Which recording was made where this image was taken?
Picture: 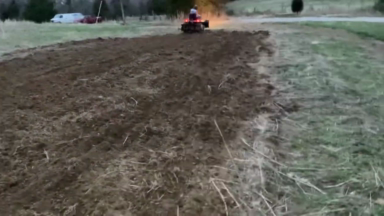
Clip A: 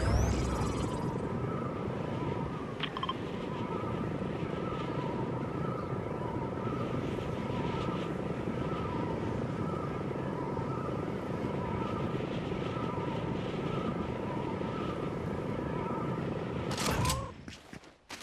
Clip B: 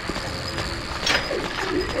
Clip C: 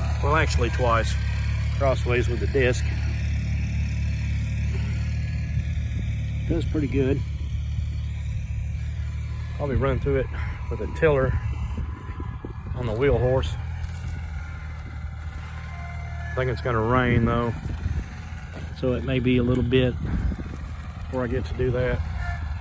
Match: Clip C